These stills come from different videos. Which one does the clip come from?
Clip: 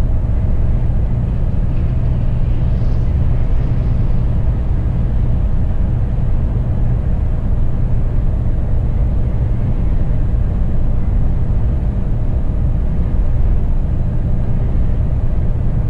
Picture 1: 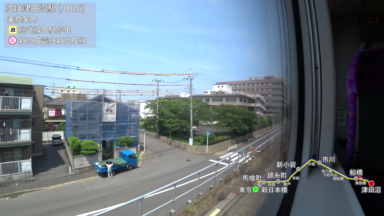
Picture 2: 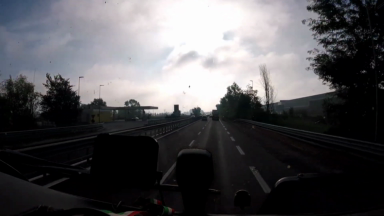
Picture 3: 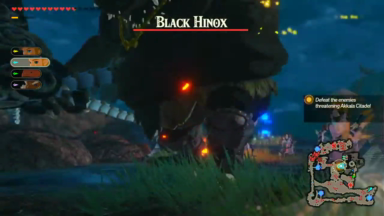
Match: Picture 2